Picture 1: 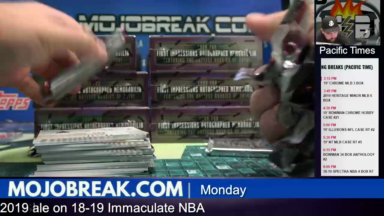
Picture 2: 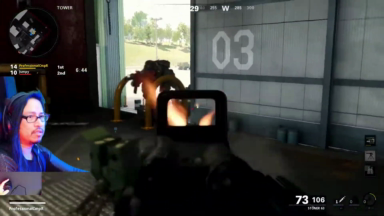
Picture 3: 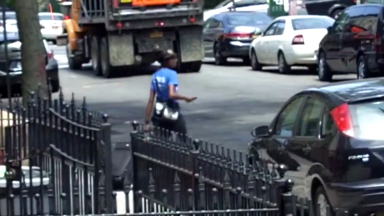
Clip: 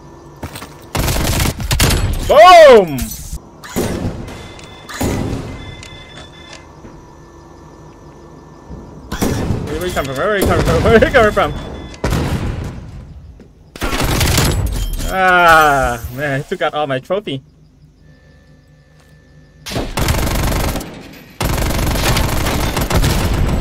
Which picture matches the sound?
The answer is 2